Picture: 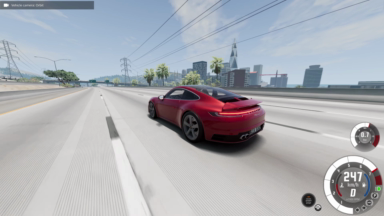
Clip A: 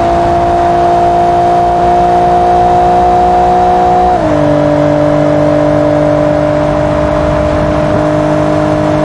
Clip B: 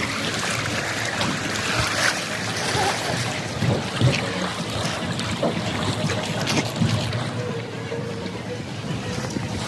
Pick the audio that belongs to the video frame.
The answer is A